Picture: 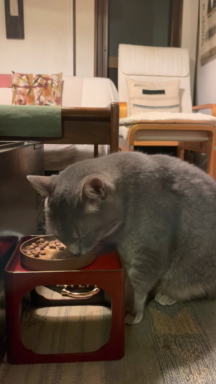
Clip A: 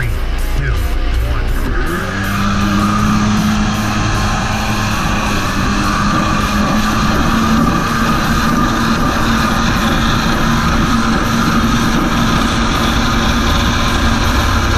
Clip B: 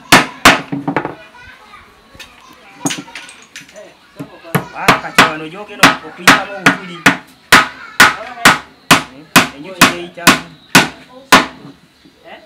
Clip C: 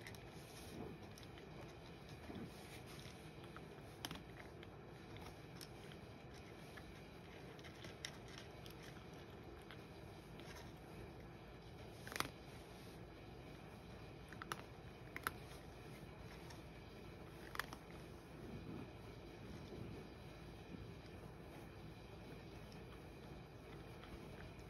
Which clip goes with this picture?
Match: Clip C